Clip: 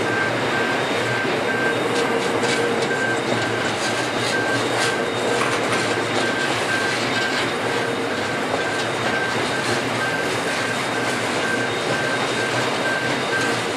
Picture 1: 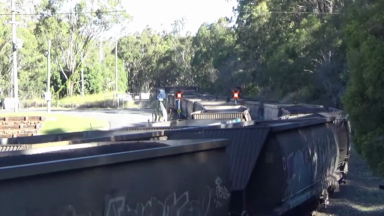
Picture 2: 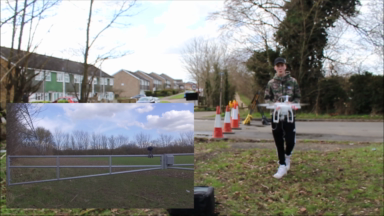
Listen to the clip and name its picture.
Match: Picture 1